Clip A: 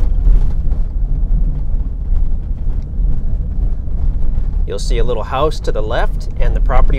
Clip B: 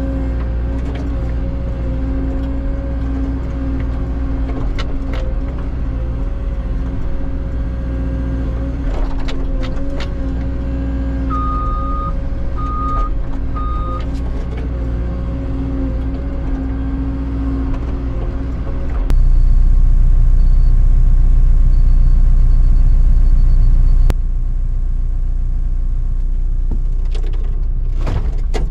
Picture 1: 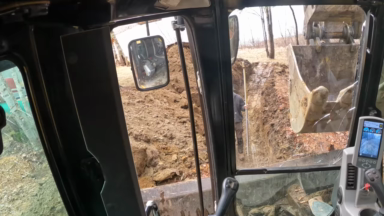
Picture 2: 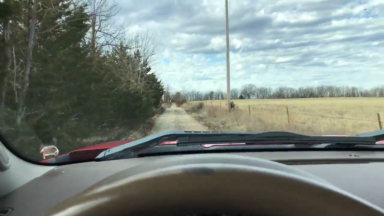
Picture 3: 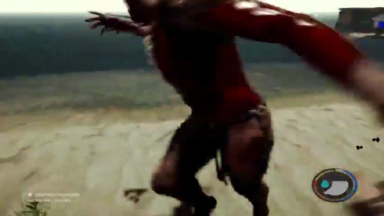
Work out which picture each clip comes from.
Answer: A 2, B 1